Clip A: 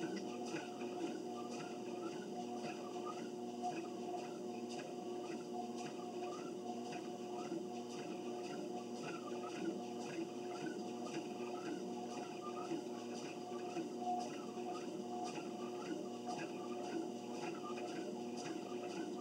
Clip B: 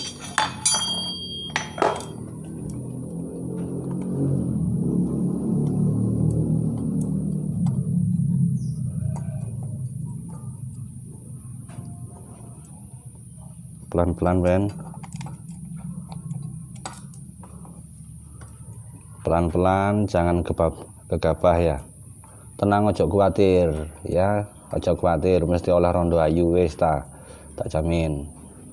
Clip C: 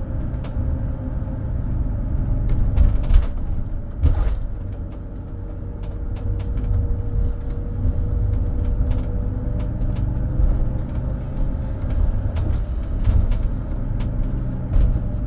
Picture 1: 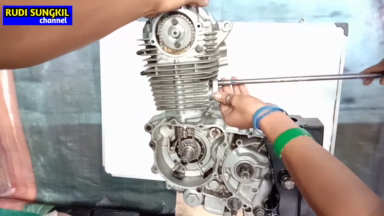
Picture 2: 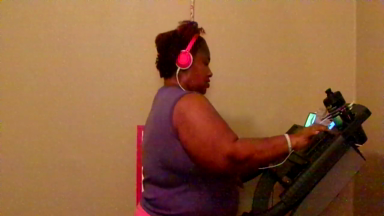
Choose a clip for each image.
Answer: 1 B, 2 A